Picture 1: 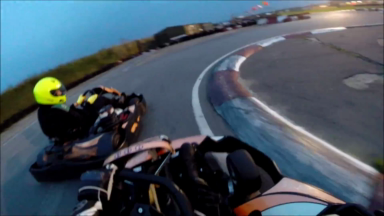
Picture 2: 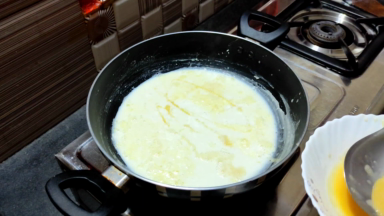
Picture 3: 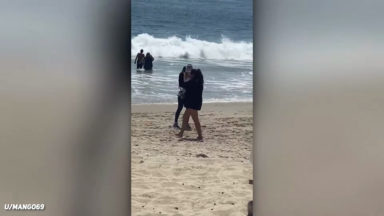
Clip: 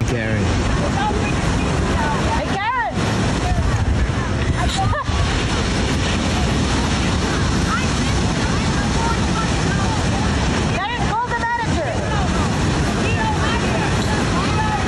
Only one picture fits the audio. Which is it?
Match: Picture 3